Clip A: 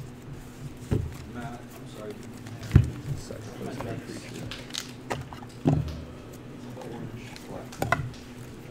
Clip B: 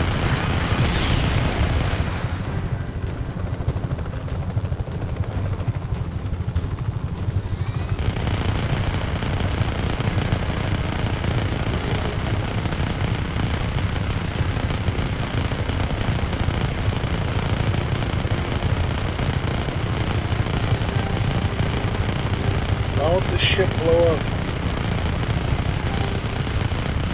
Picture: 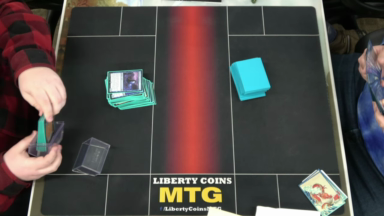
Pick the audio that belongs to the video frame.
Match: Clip A